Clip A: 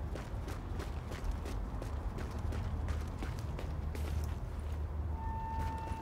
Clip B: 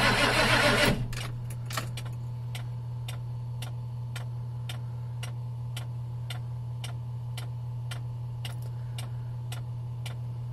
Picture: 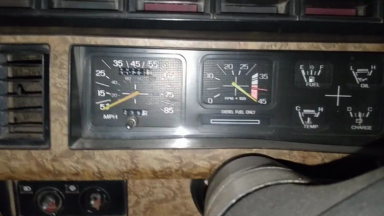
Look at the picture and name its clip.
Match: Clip B